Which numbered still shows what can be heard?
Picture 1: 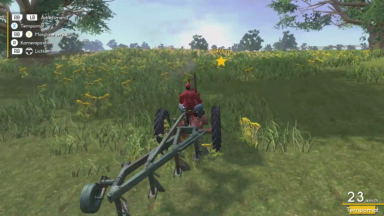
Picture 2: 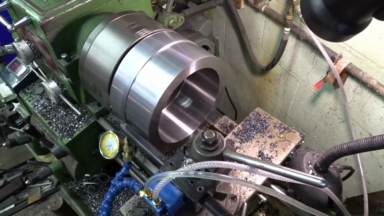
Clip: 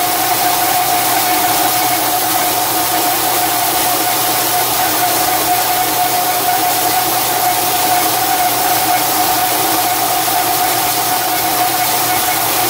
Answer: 2